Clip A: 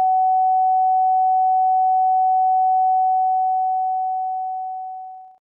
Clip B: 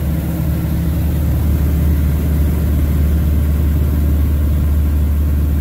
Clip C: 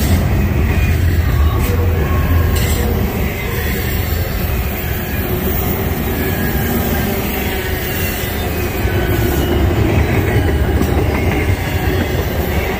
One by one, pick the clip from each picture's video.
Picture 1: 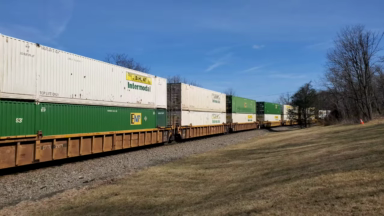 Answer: C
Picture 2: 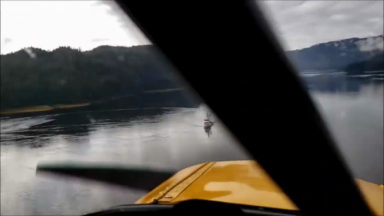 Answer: B